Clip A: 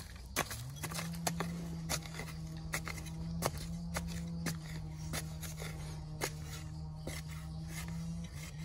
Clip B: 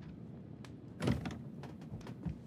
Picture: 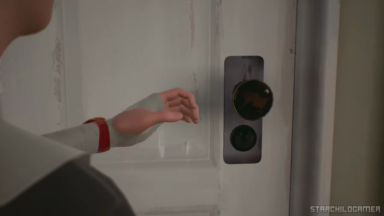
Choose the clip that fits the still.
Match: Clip B